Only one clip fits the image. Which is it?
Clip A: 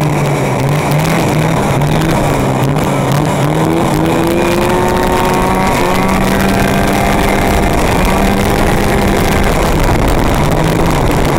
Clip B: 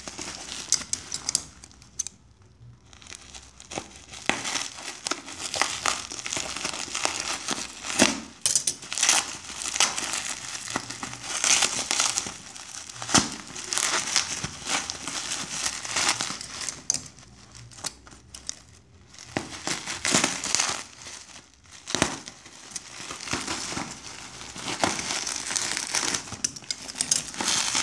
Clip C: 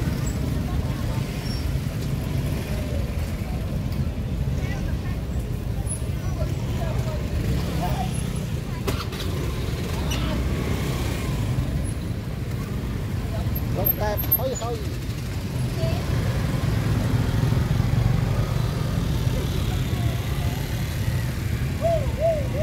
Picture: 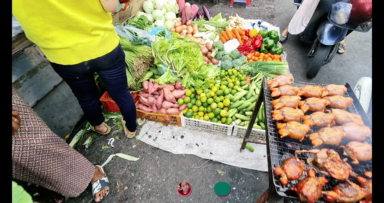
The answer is C